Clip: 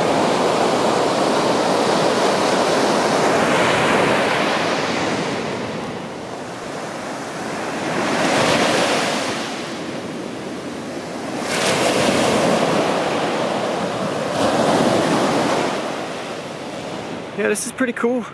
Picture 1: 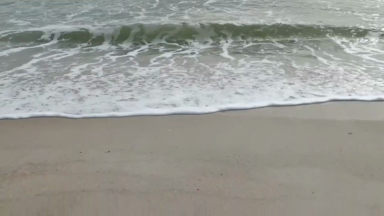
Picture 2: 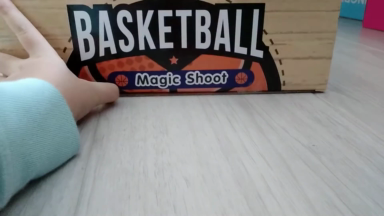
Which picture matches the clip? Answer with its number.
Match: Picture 1